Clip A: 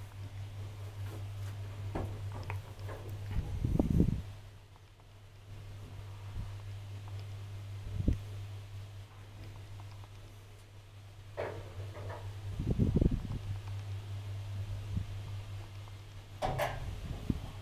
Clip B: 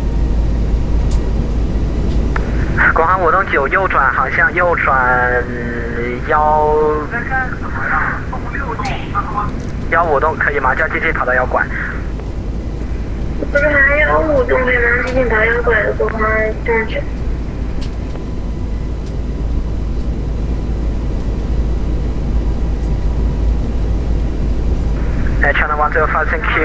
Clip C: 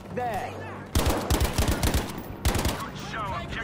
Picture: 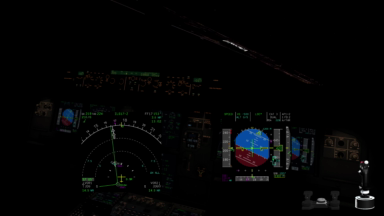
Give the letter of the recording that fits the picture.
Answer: B